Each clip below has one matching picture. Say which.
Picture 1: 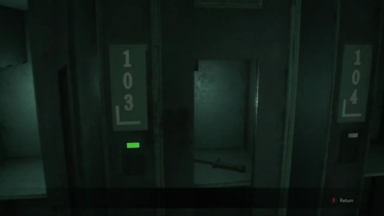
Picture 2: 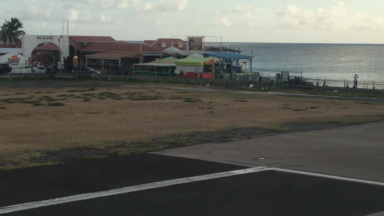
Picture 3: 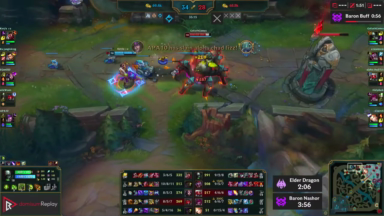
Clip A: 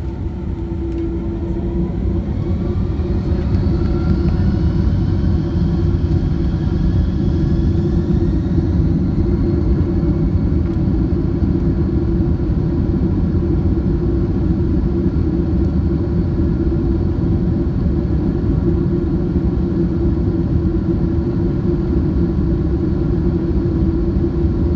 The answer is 2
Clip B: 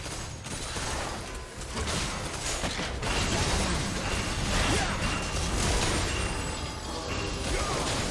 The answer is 3